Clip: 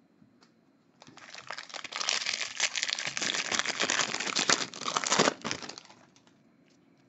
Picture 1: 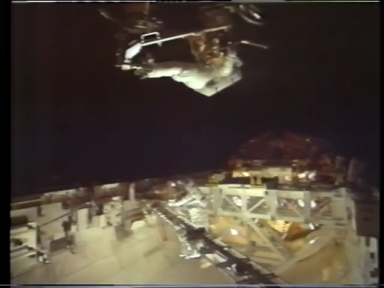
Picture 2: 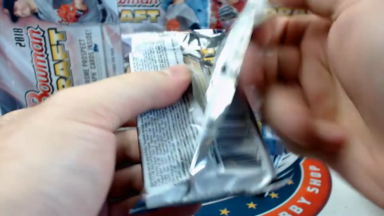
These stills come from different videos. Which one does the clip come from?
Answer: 2